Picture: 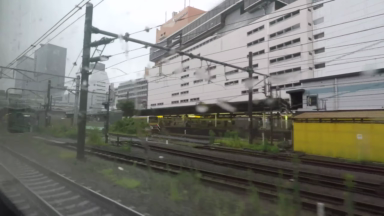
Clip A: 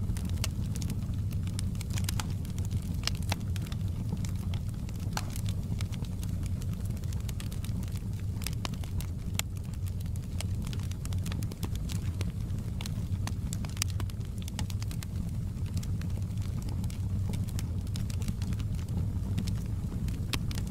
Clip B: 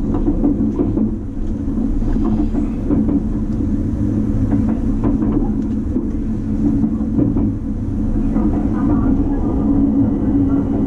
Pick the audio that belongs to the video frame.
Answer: B